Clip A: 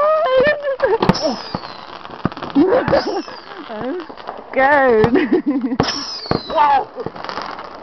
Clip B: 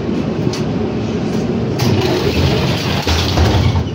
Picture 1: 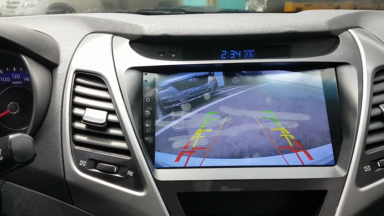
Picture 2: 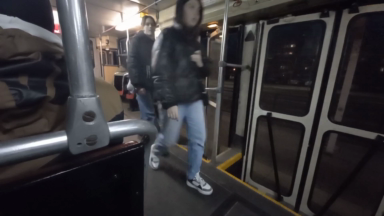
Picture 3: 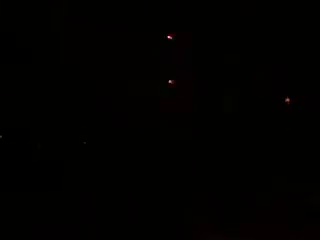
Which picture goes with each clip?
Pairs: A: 3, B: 2